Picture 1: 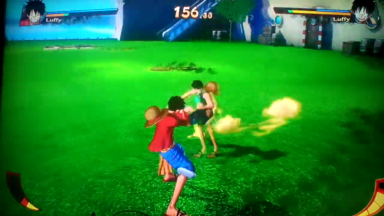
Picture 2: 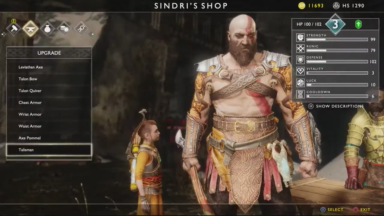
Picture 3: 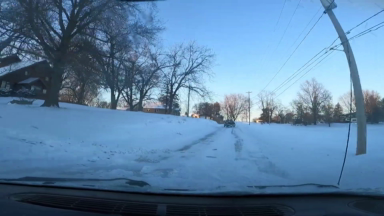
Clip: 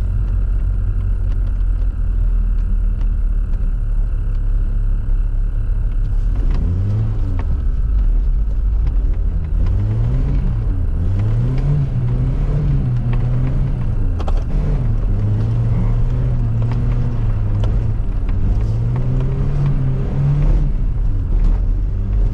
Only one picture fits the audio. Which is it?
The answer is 3